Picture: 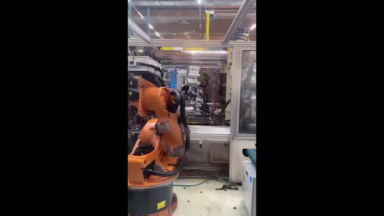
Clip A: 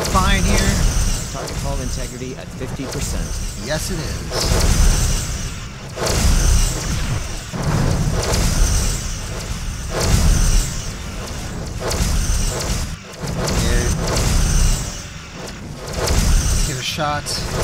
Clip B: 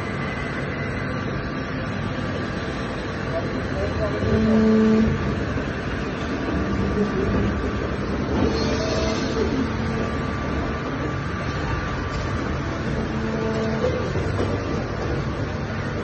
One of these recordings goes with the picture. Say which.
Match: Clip B